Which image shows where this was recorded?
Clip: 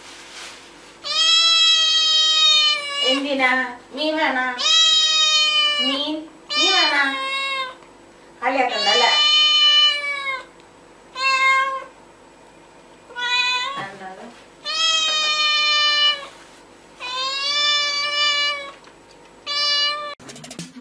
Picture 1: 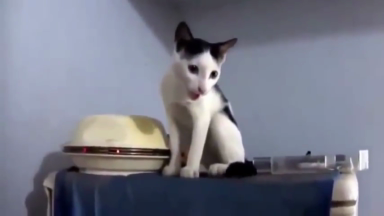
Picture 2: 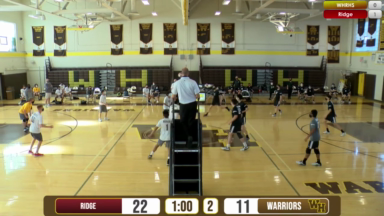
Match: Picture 1